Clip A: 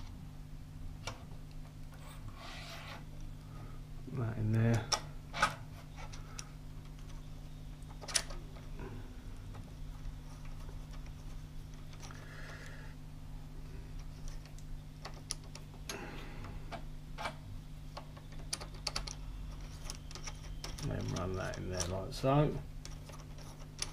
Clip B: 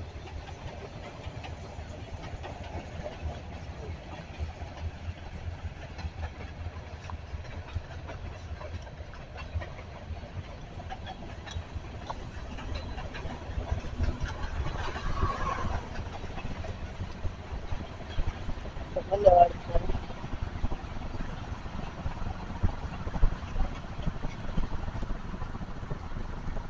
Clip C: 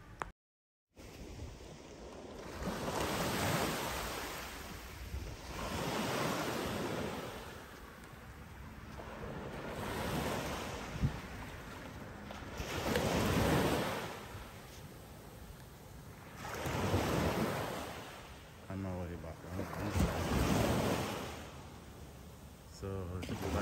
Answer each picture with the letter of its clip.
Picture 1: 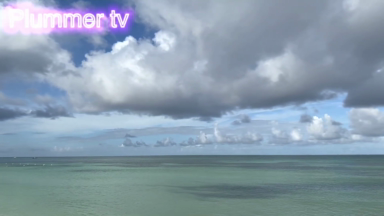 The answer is C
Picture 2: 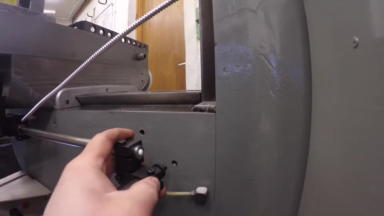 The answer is A